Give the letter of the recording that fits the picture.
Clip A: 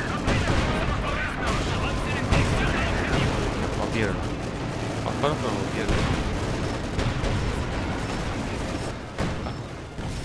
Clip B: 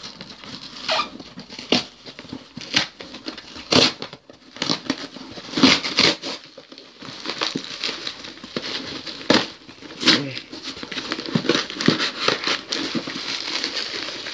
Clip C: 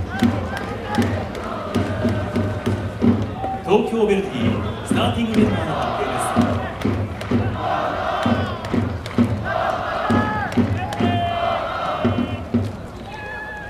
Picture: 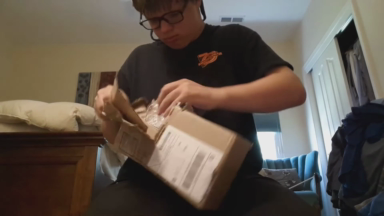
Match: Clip B